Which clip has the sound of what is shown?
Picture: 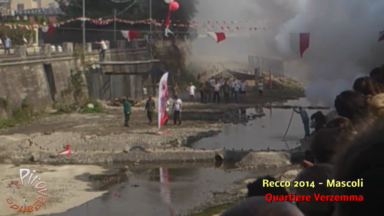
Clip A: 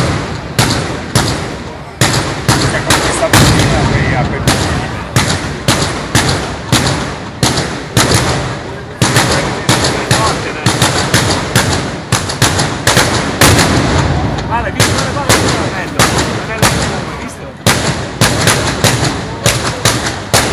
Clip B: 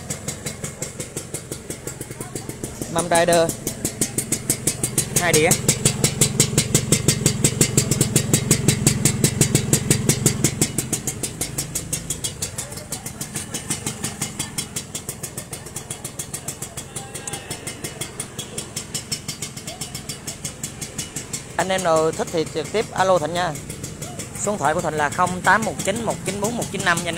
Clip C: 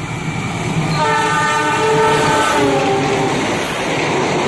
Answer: A